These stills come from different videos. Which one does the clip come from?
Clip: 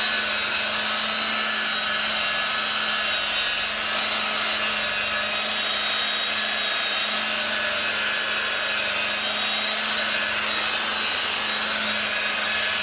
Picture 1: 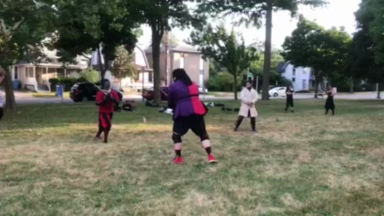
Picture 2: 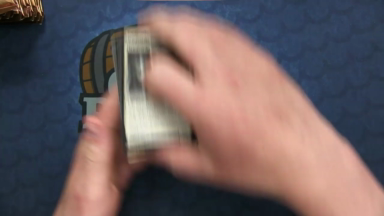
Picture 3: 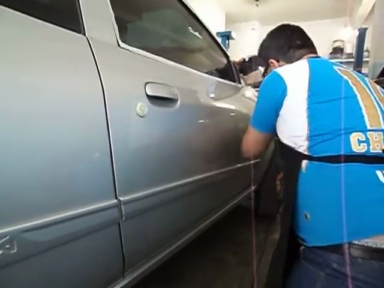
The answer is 3